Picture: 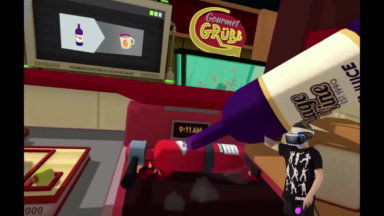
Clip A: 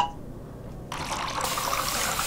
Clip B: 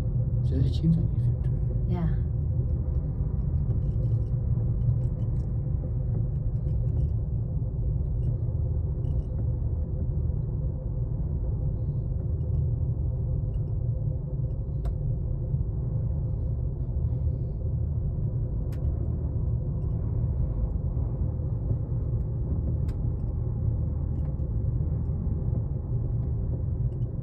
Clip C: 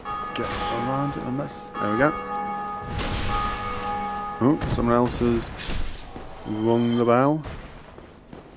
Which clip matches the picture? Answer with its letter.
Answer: A